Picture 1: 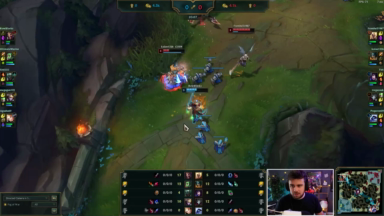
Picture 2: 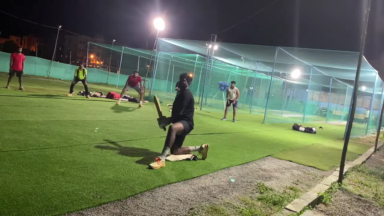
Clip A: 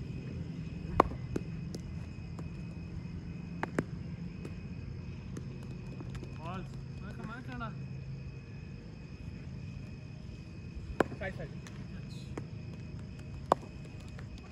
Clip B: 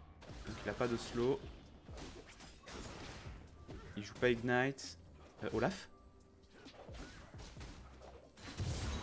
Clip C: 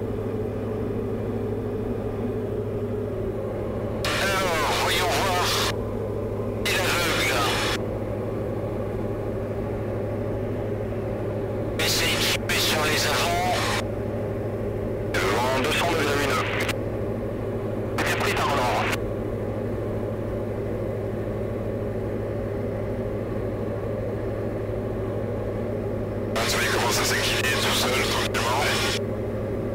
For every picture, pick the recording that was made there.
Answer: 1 B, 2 A